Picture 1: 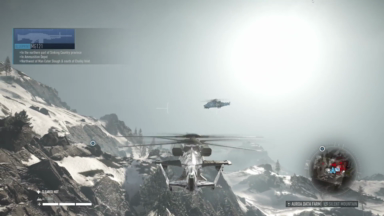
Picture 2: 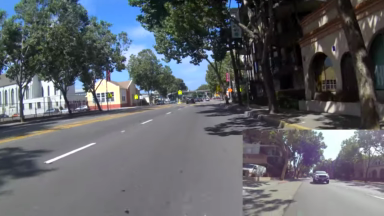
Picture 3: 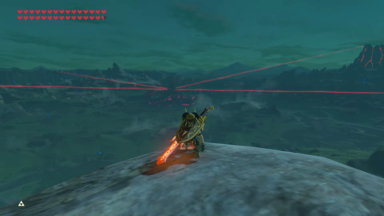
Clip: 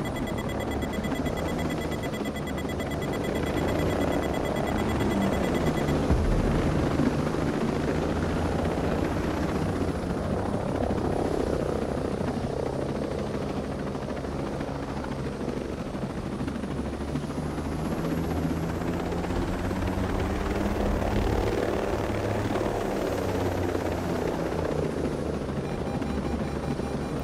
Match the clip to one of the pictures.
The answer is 1